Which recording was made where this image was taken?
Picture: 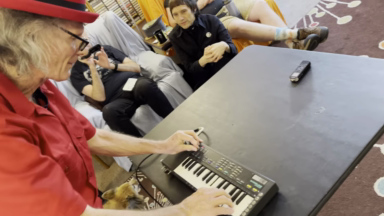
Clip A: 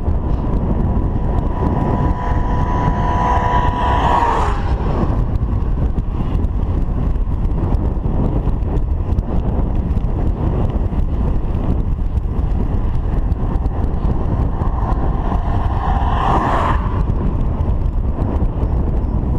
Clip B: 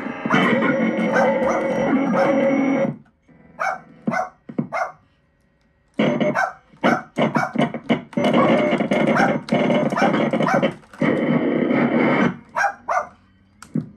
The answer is B